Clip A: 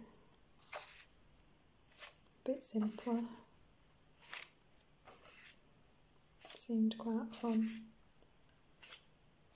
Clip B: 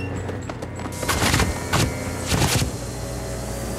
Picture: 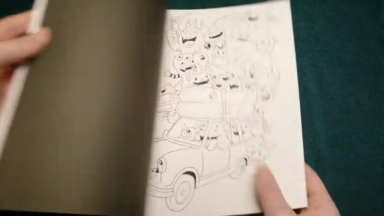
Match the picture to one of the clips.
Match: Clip A